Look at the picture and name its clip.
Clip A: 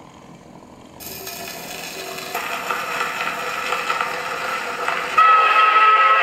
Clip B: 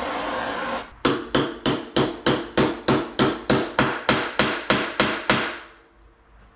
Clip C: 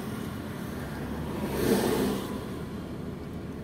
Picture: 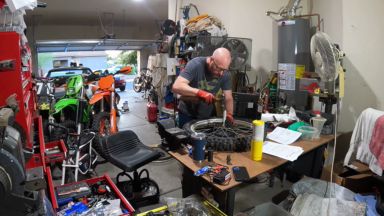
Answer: B